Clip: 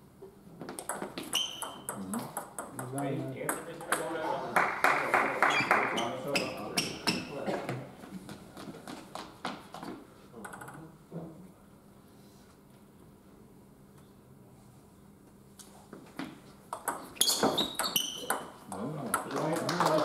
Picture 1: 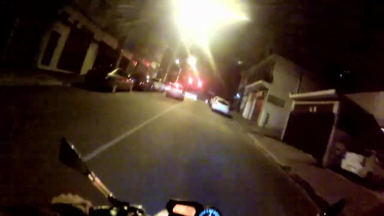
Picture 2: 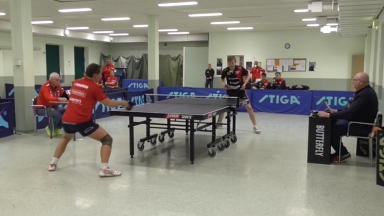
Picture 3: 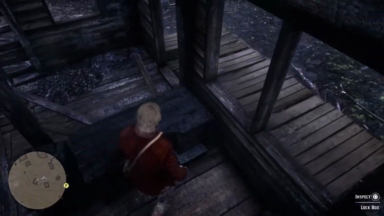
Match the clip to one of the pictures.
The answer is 2